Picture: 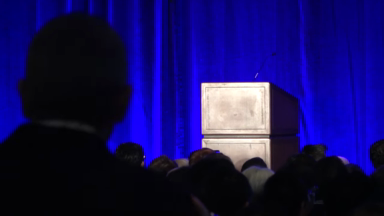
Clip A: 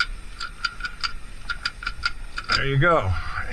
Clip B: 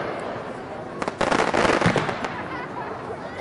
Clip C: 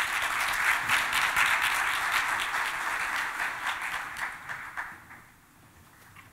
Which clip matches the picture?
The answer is C